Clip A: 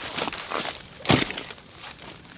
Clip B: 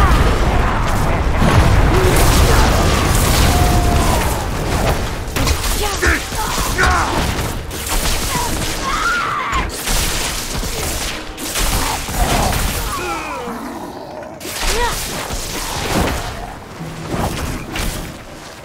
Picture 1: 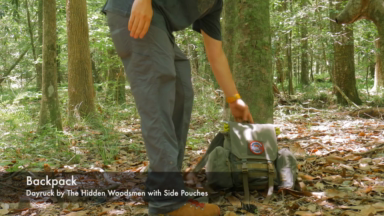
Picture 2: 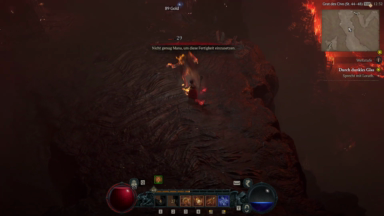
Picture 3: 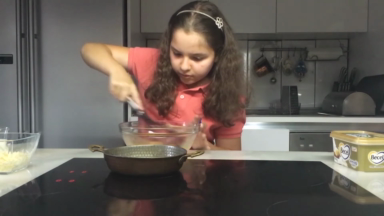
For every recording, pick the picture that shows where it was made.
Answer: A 1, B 2